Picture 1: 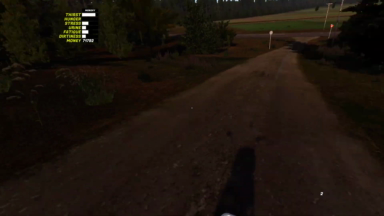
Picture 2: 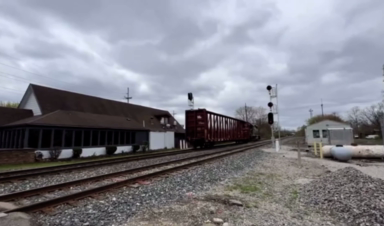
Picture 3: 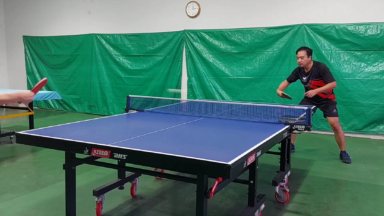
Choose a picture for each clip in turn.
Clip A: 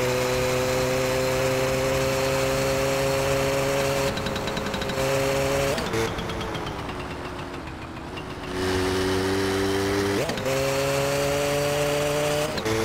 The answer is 1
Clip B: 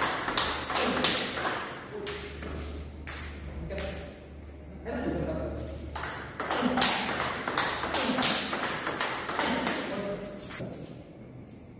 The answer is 3